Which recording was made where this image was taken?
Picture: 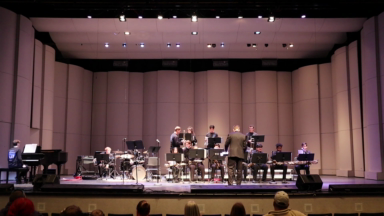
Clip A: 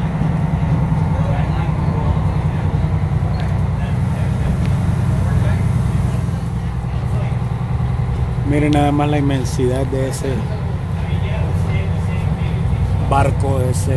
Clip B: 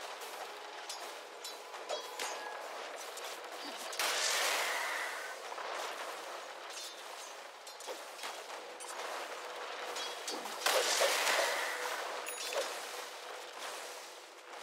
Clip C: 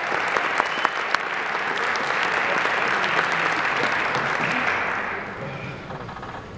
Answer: C